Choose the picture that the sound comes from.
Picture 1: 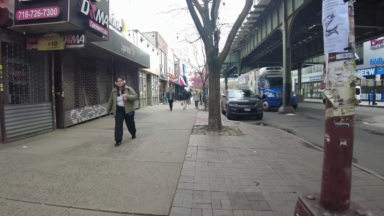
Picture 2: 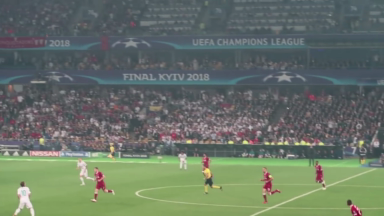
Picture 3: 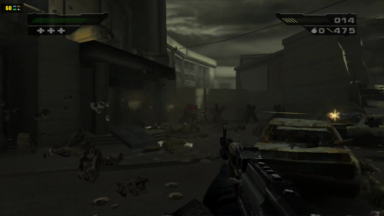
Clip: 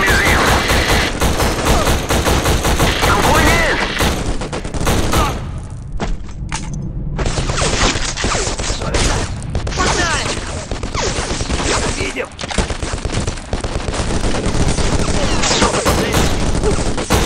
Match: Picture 3